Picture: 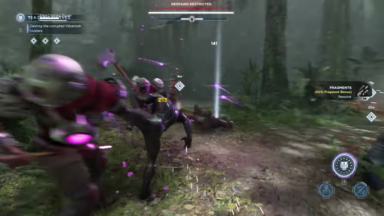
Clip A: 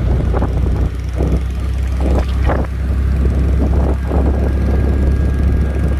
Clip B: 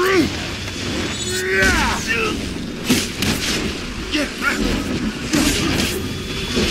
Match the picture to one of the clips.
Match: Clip B